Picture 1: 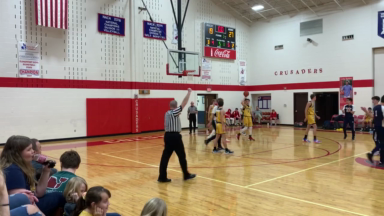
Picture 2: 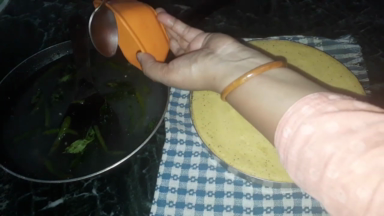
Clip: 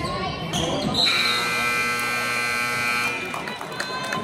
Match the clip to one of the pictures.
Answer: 1